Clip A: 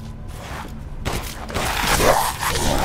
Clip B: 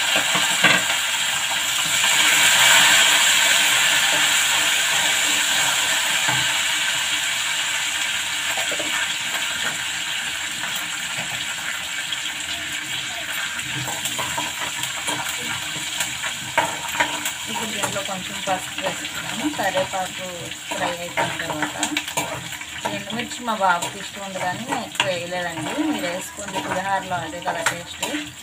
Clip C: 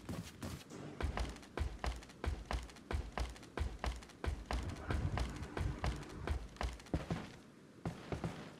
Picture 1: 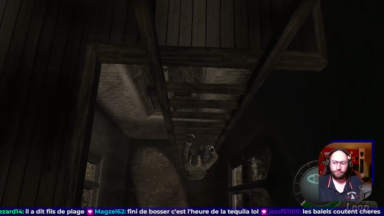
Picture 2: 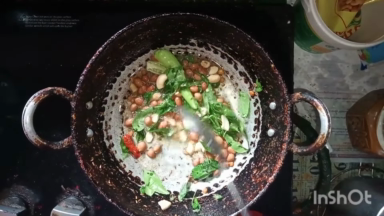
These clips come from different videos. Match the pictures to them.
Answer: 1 C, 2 B